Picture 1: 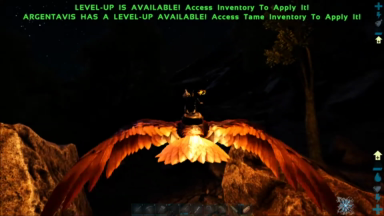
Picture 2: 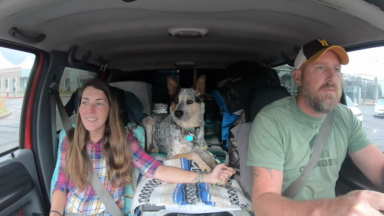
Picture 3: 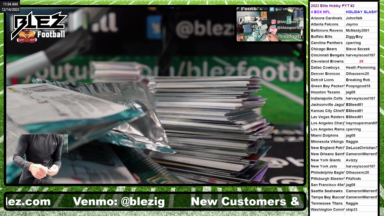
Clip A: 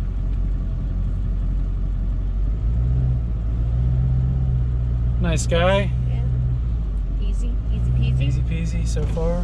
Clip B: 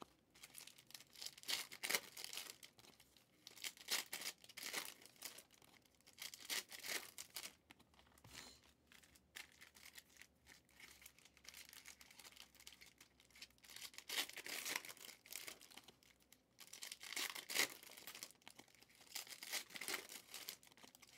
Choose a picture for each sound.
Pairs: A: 2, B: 3